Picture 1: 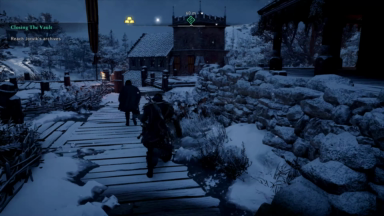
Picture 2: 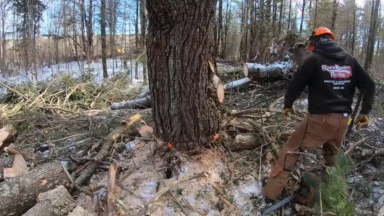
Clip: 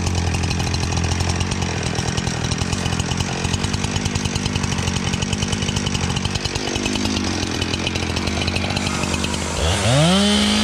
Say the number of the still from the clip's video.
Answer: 2